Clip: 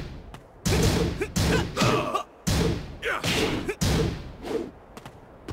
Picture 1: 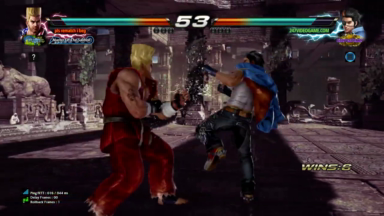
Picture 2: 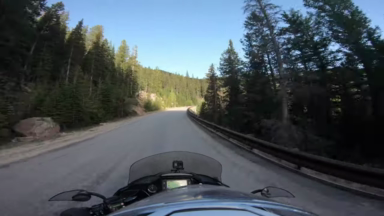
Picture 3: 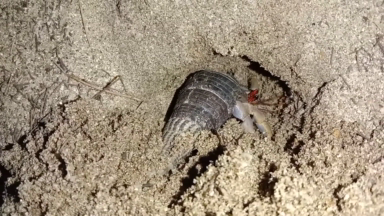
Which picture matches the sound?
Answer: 1